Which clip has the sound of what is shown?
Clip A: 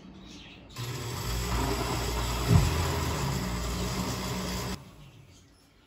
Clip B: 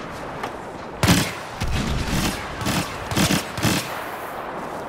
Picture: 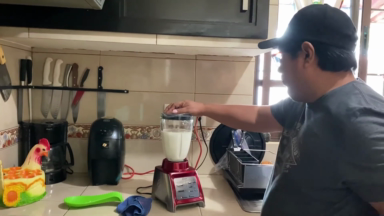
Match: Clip A